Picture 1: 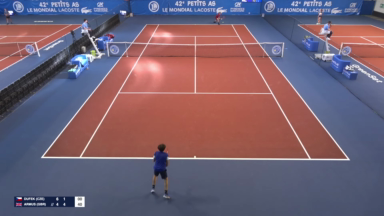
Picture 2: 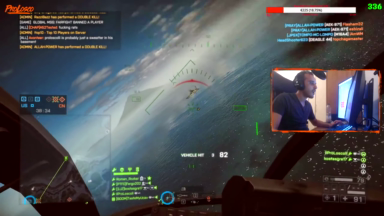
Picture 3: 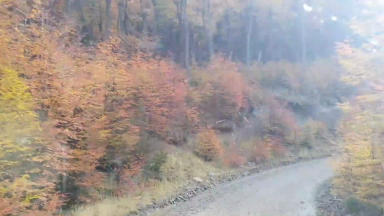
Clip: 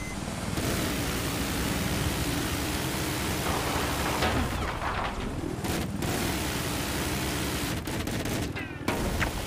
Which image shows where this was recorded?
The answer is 2